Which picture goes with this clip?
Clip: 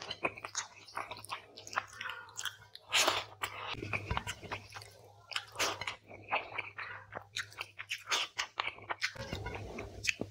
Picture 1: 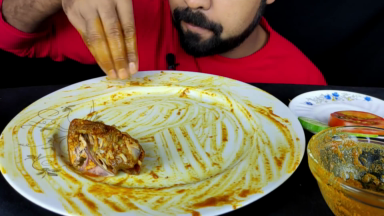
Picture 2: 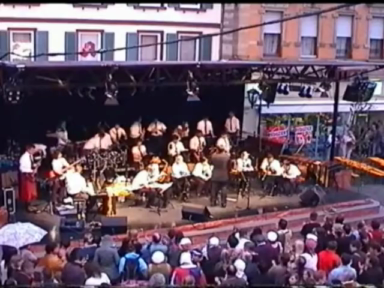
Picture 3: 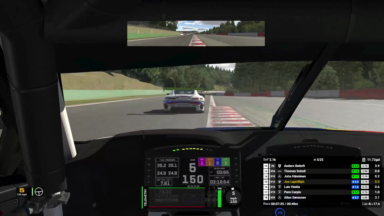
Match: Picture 1